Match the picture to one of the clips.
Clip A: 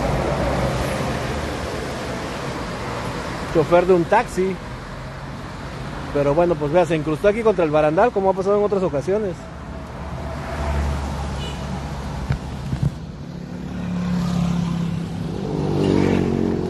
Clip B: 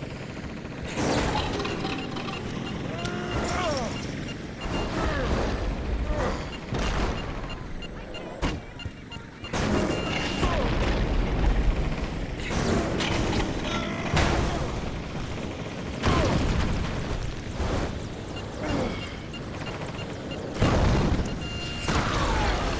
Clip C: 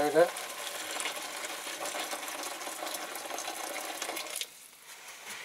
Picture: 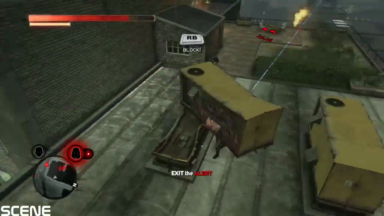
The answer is B